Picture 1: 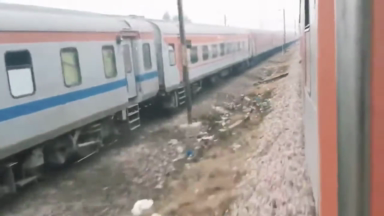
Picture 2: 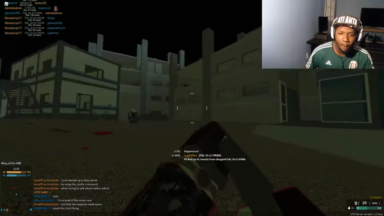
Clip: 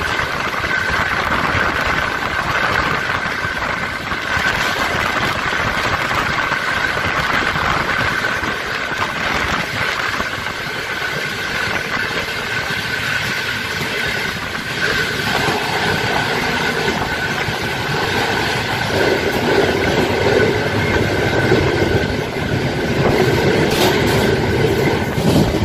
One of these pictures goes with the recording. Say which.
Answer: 1